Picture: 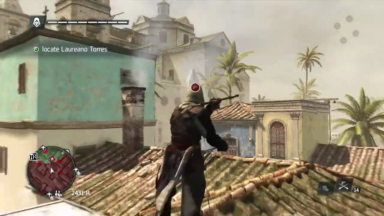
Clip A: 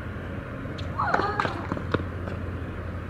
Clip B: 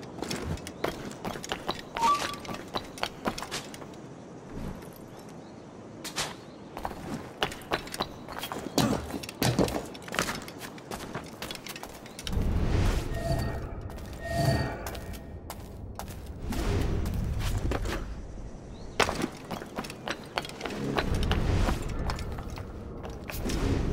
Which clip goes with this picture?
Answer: B